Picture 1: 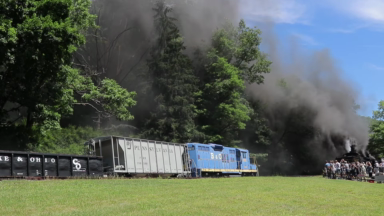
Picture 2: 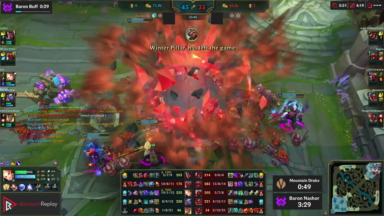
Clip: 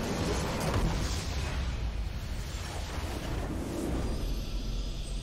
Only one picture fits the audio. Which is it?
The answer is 2